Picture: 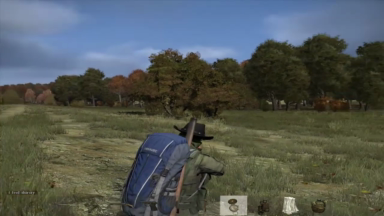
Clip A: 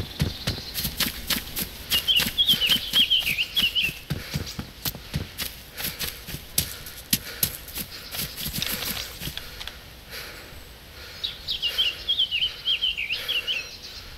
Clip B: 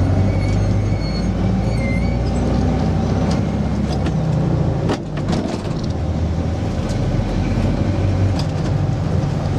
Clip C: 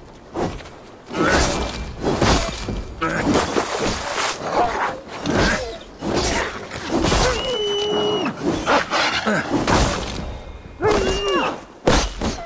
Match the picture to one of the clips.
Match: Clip A